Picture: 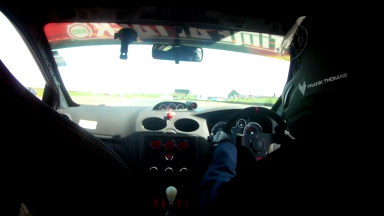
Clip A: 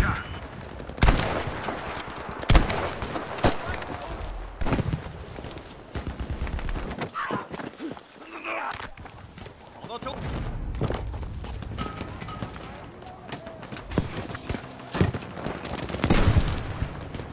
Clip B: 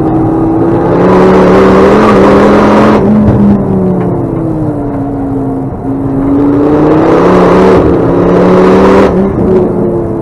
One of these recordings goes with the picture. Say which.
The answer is B